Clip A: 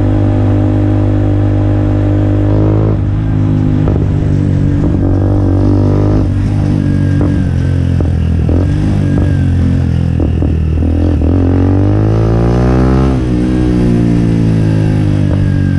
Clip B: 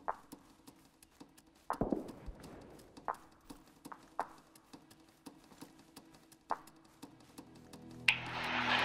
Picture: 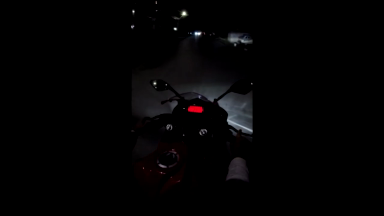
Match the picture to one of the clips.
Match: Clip A